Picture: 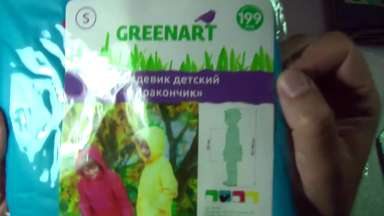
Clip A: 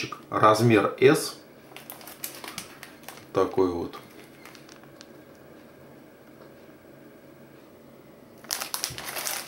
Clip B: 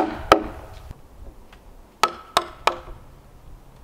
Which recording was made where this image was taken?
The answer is A